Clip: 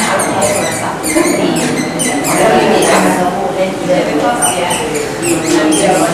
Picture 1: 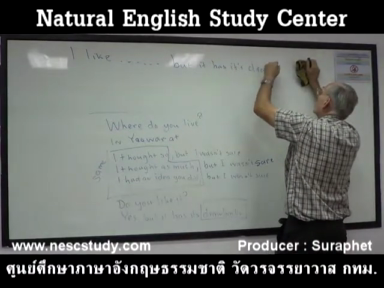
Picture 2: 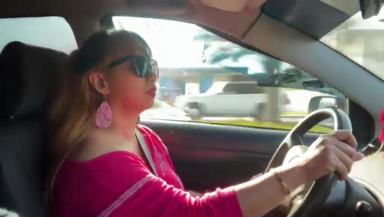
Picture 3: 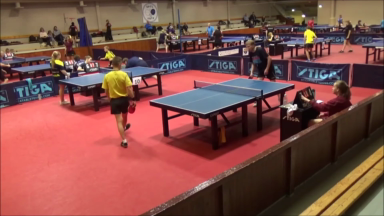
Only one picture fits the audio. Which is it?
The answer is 1